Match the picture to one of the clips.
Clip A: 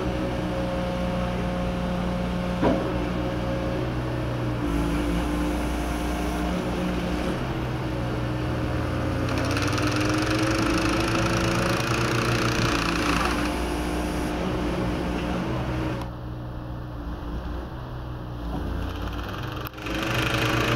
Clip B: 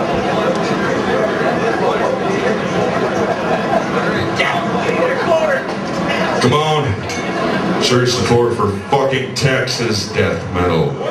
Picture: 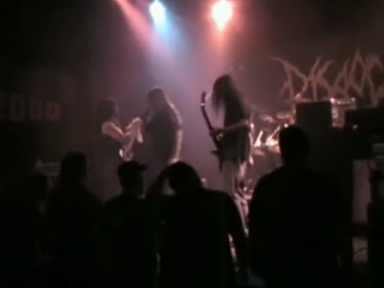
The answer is B